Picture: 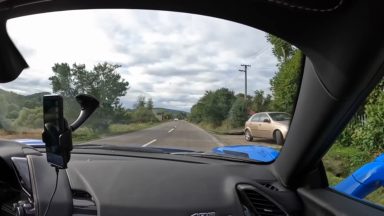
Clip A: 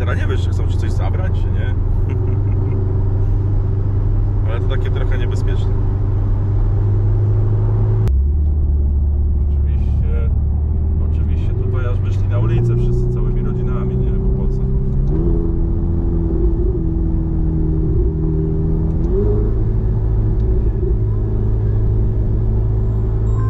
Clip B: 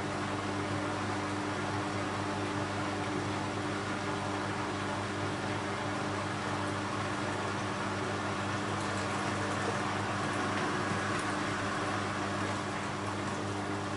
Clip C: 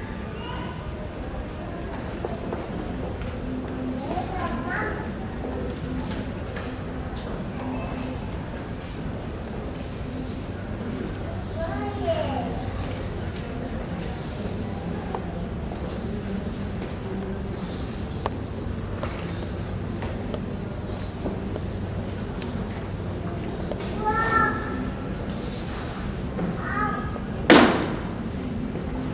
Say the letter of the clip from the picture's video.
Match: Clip A